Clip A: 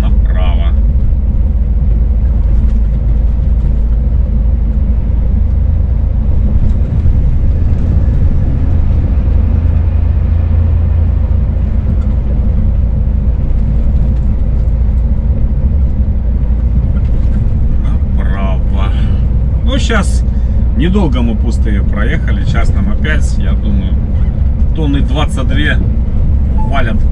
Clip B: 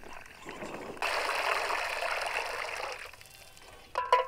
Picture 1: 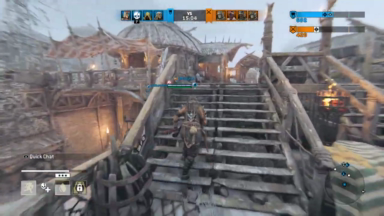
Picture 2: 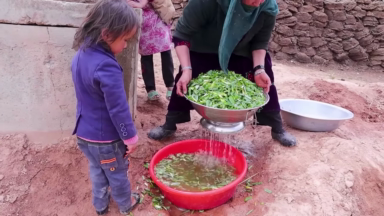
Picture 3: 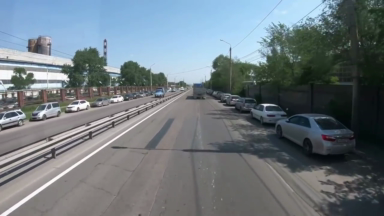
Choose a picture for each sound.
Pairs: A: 3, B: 2